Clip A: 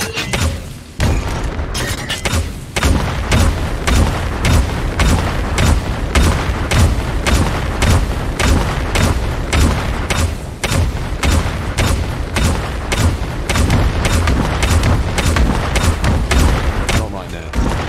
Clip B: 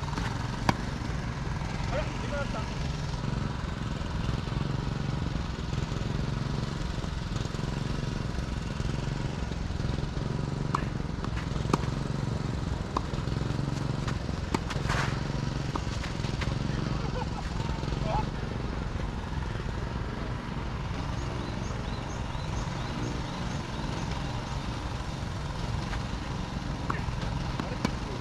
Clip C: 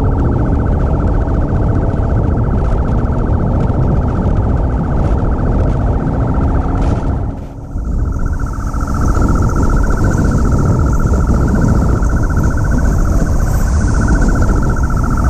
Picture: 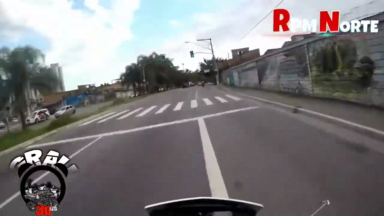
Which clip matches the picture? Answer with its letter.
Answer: C